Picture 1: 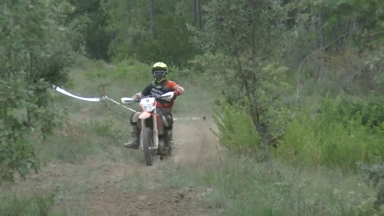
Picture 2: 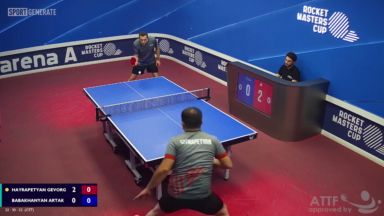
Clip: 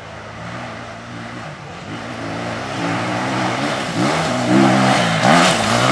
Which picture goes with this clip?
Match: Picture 1